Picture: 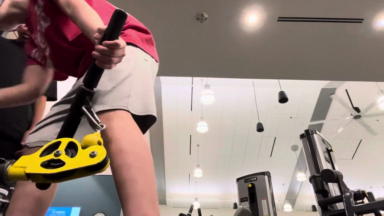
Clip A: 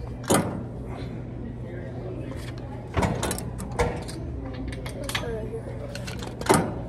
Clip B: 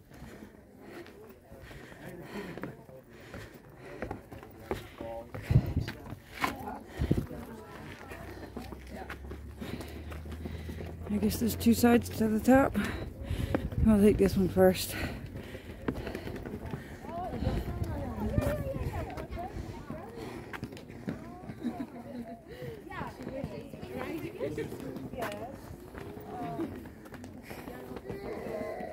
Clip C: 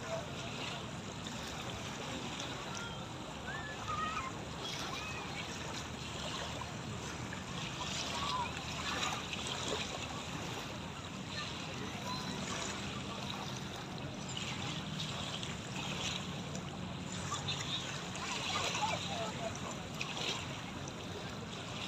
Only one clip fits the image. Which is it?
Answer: A